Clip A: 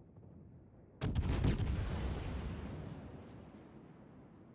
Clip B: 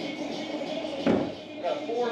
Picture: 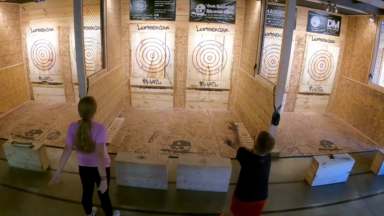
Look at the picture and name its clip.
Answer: B